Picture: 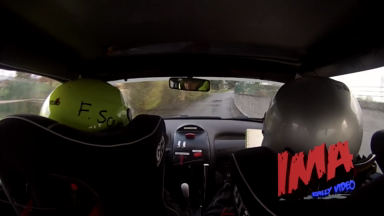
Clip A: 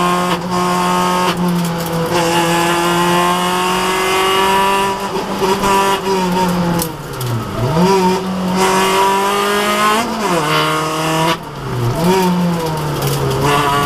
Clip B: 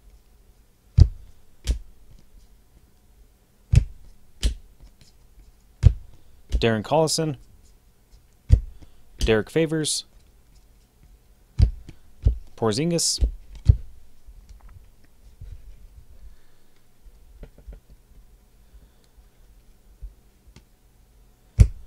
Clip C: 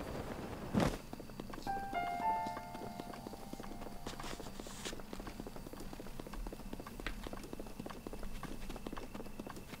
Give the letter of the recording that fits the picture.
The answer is A